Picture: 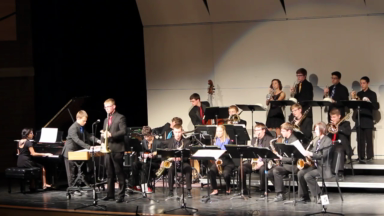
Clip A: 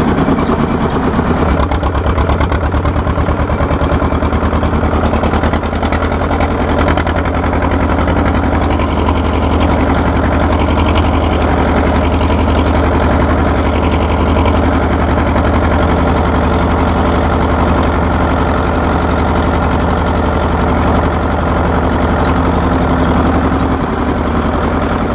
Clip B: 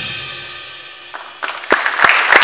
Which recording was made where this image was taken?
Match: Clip B